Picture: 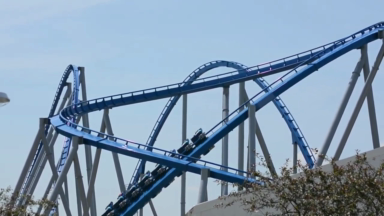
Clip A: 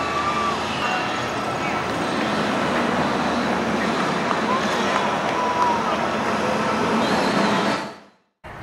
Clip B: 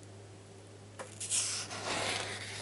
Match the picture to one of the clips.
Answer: A